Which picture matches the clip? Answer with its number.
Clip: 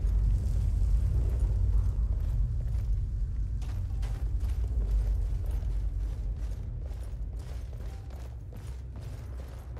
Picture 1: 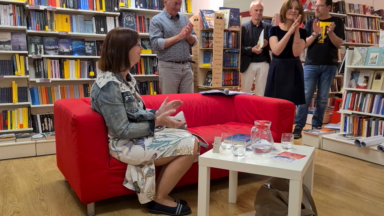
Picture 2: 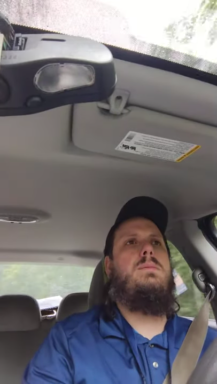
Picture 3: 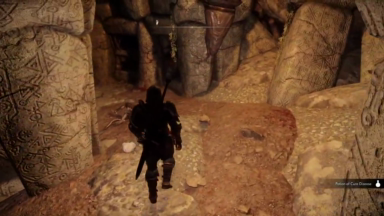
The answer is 3